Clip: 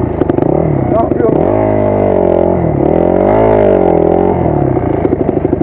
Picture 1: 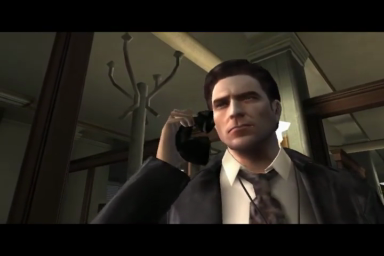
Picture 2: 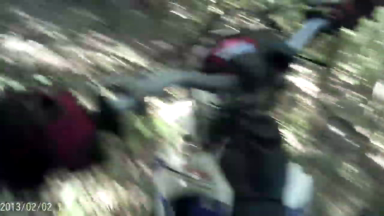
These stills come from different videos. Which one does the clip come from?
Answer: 2